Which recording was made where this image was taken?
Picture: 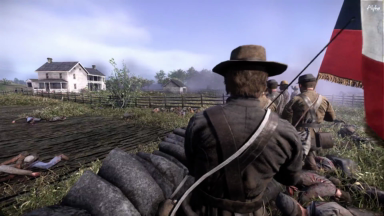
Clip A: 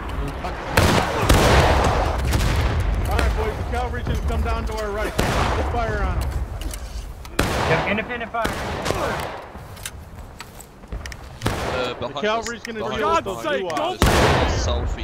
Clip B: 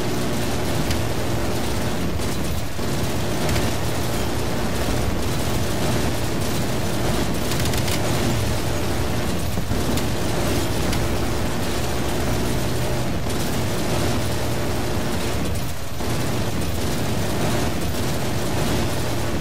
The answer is A